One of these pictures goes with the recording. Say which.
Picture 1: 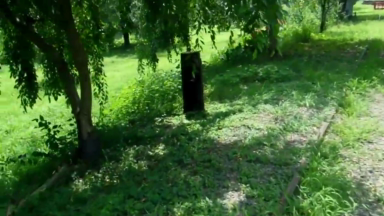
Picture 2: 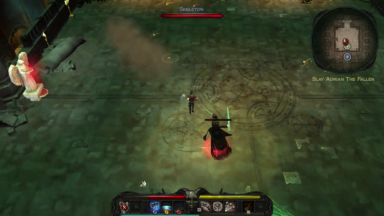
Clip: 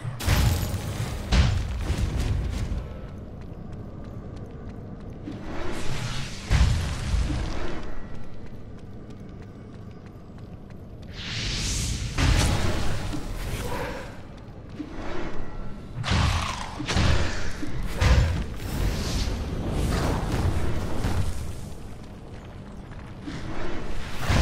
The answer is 2